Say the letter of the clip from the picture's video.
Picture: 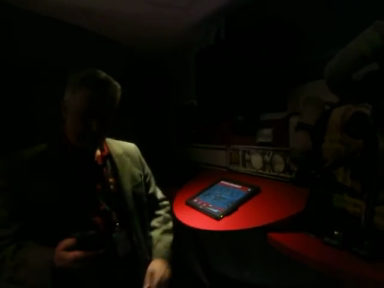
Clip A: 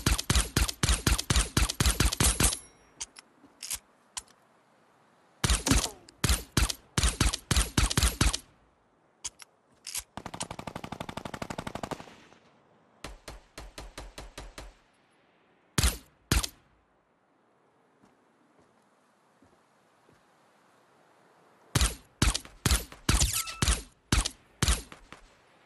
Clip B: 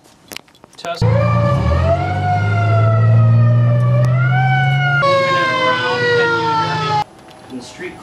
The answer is B